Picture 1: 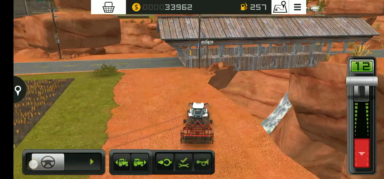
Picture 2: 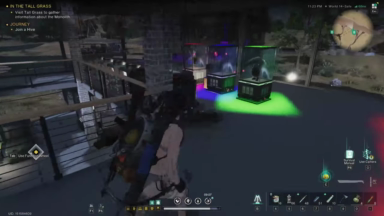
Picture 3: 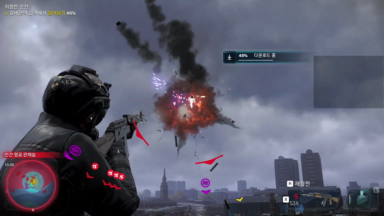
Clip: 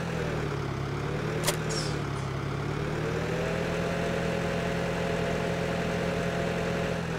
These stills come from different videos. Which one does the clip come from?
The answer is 1